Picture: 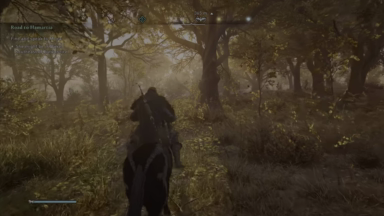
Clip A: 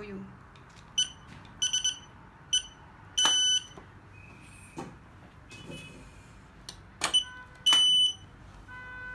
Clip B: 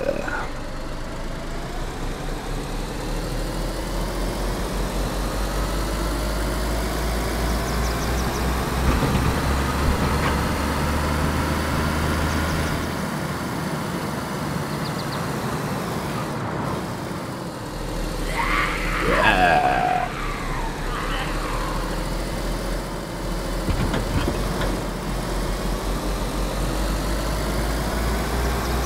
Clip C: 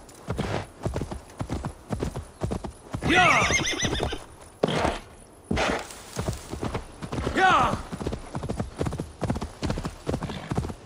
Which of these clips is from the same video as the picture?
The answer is C